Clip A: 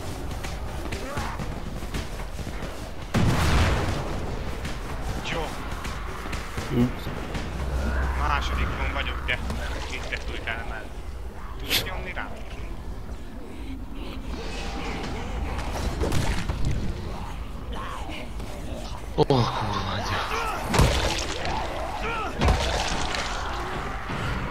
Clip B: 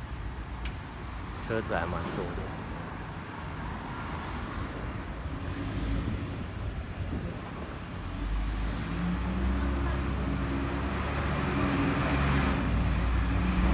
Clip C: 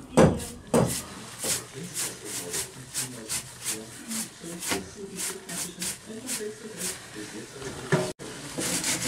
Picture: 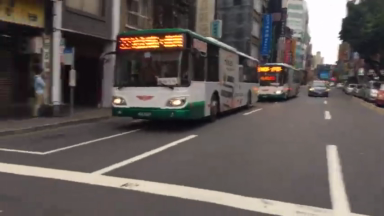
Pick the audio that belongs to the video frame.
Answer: B